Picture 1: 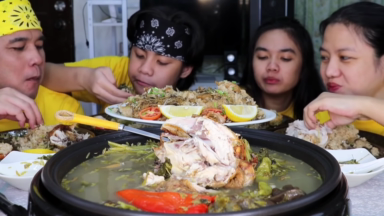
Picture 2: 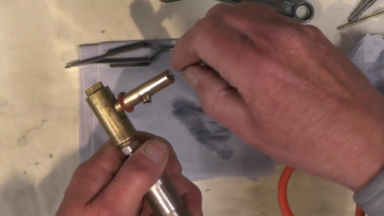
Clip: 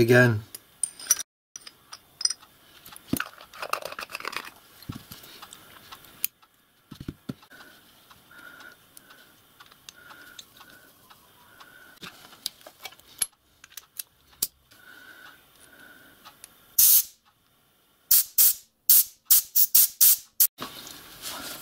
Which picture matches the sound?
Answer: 2